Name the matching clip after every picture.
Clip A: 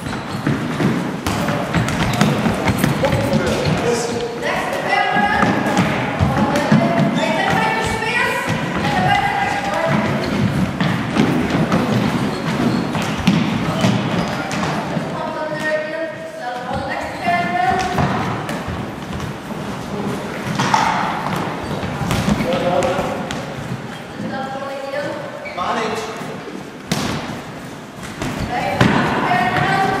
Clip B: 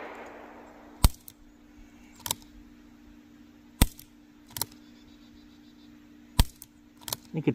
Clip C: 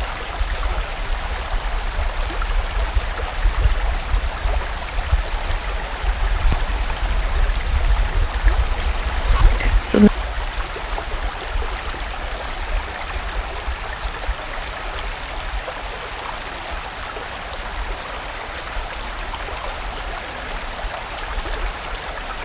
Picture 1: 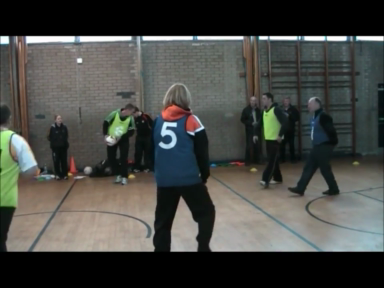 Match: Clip A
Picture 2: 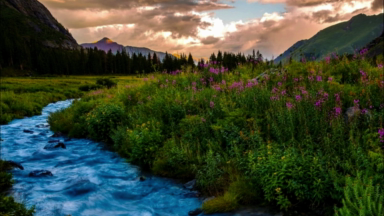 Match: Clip C